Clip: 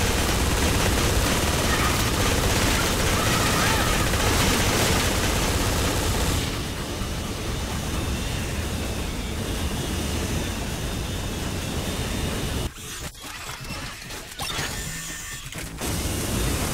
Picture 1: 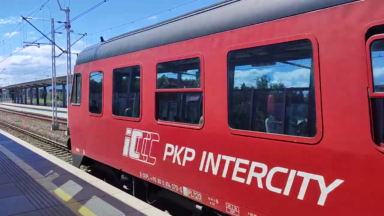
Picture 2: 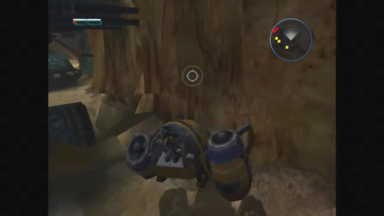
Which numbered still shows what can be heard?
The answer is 2